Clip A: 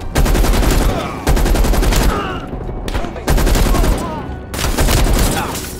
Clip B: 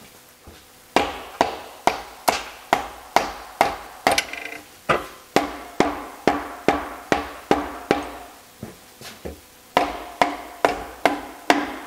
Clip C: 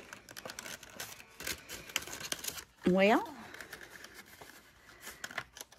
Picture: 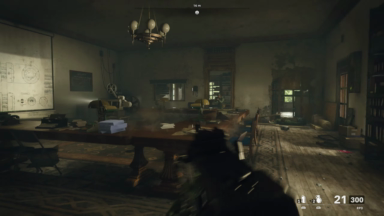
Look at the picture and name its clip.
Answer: A